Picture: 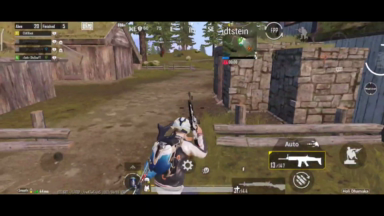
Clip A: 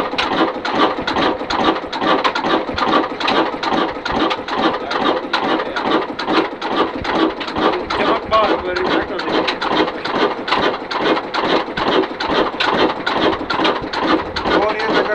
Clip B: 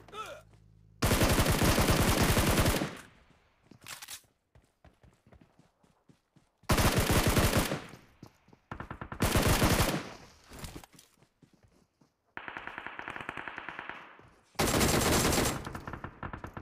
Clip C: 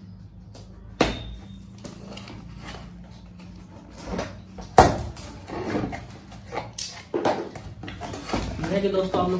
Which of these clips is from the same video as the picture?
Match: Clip B